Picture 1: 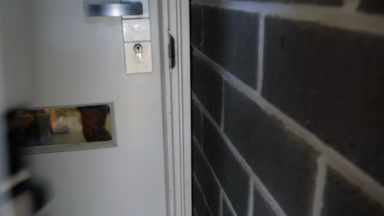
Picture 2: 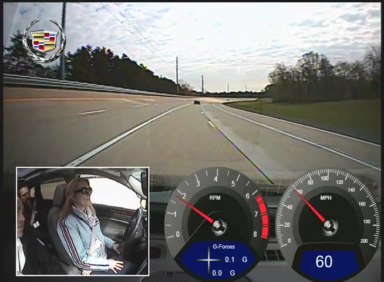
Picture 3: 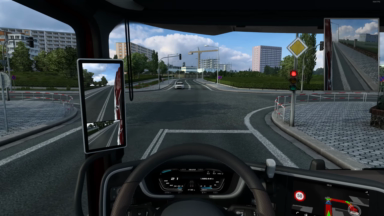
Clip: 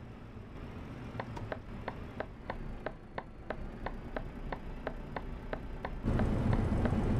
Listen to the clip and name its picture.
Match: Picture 3